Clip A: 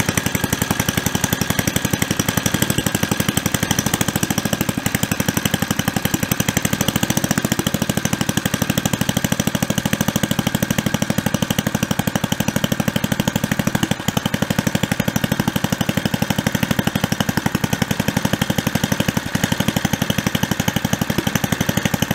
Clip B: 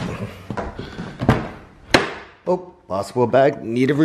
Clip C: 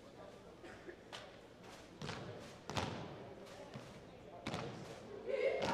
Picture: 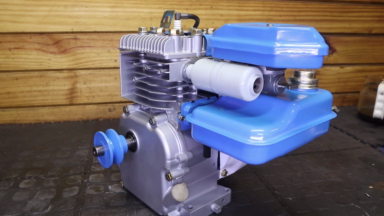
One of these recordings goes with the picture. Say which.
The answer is A